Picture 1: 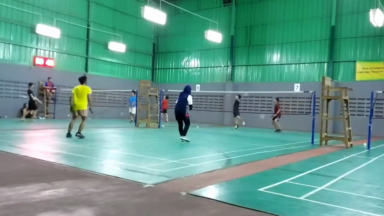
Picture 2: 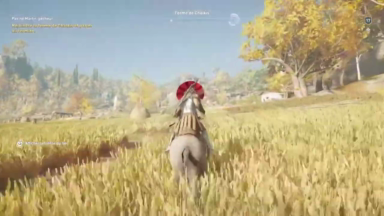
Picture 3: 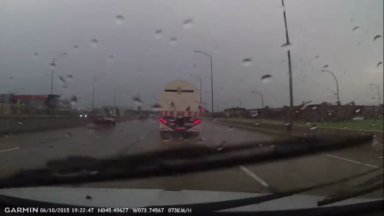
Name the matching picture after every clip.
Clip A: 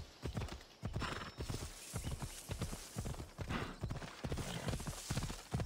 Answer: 2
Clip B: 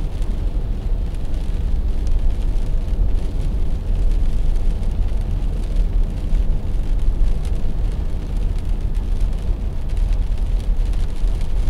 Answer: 3